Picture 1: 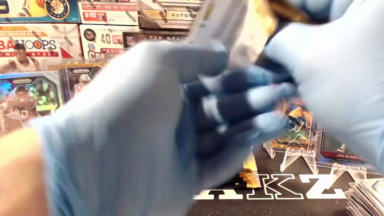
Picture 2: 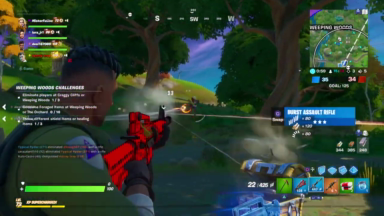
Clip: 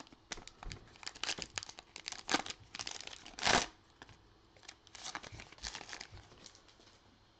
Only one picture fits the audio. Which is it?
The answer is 1